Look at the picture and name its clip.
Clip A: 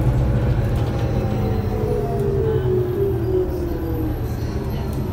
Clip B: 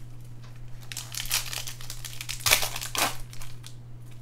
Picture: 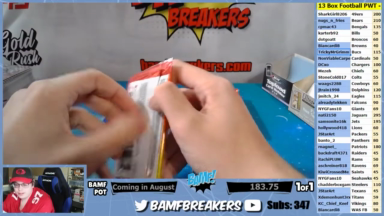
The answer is B